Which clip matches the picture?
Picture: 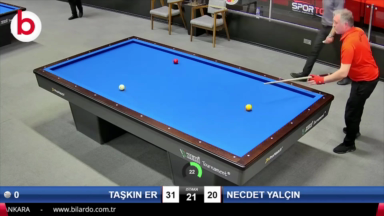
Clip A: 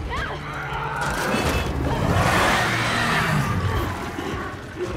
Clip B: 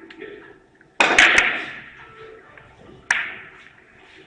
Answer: B